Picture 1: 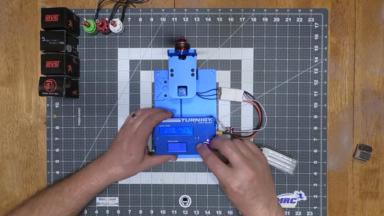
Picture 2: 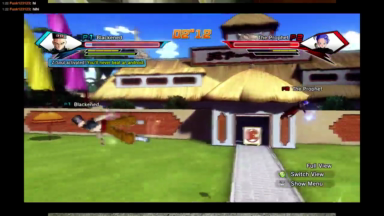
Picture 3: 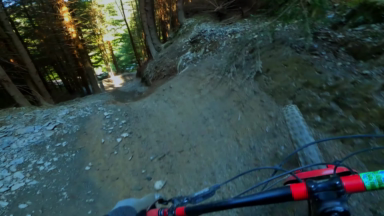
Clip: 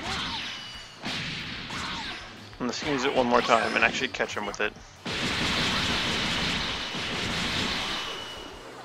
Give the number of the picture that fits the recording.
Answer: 2